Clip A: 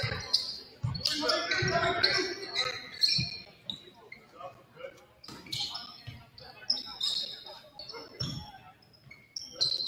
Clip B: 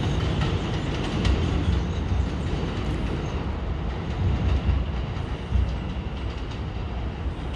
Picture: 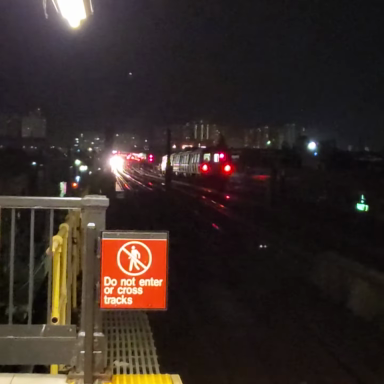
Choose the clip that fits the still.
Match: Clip B